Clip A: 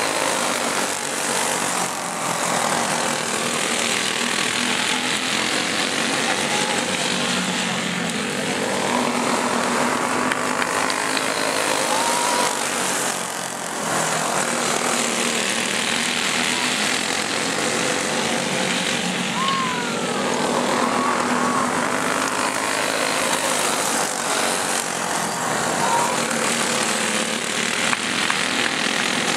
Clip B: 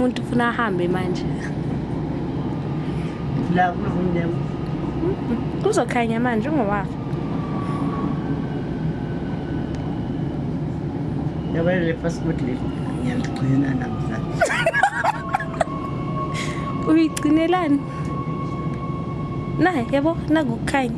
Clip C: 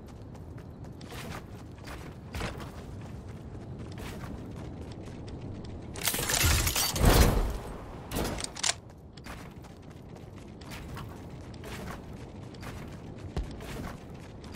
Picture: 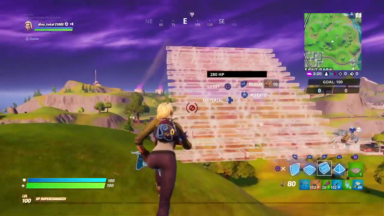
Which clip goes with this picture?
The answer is C